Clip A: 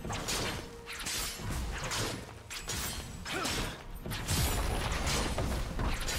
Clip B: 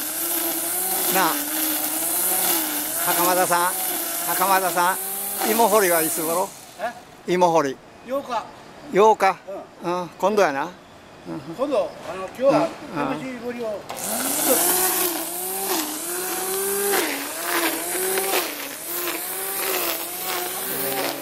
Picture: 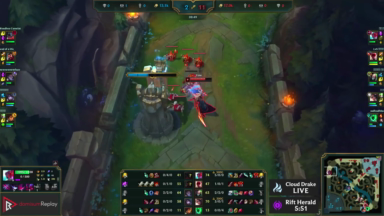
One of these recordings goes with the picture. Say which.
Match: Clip A